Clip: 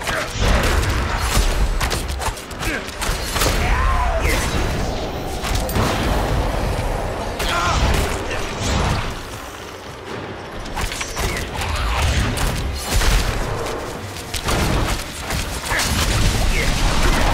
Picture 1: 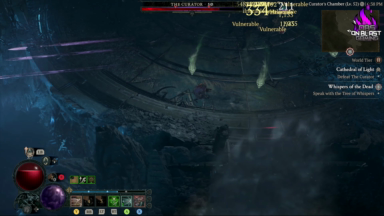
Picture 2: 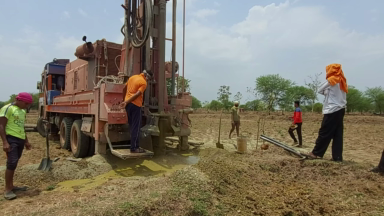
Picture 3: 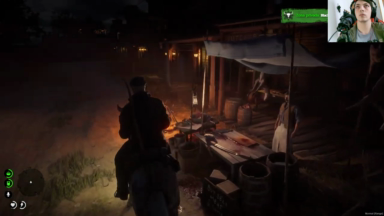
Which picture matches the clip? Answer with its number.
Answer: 1